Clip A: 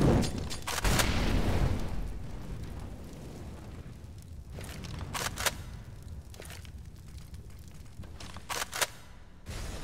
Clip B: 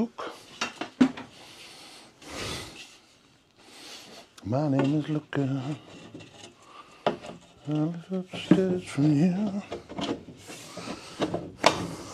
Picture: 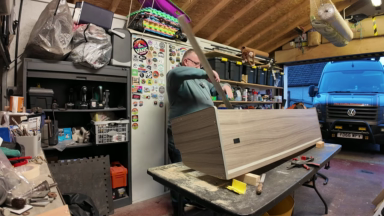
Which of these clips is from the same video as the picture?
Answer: B